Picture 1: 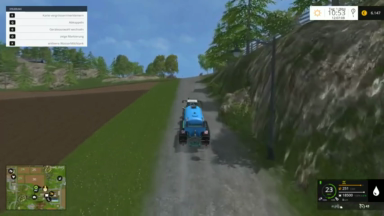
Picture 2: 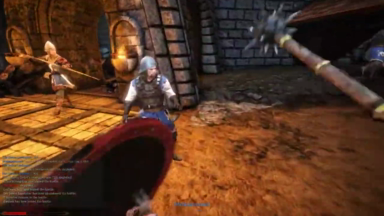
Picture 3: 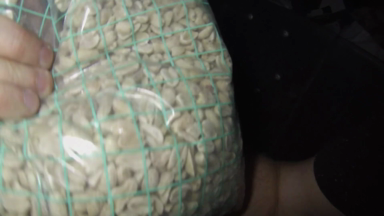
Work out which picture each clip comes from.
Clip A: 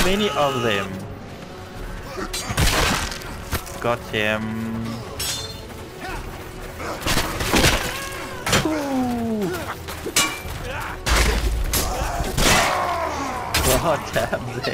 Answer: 2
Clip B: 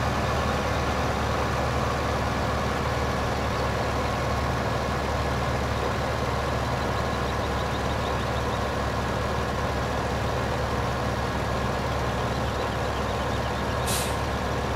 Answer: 1